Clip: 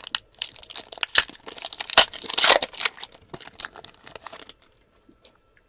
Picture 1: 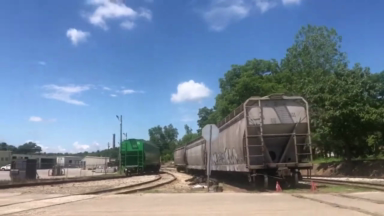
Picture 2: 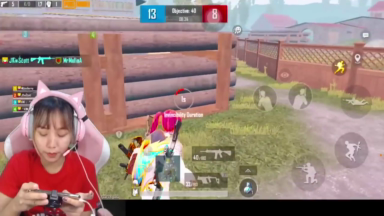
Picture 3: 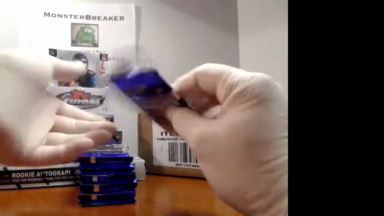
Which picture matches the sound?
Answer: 3